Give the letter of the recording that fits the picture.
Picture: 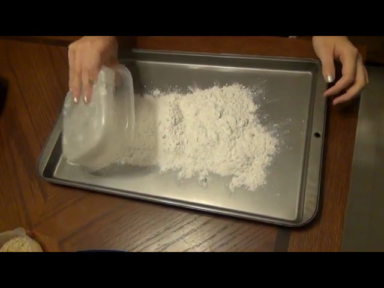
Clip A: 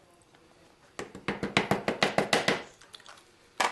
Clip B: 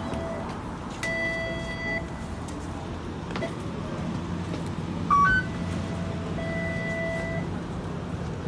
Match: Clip A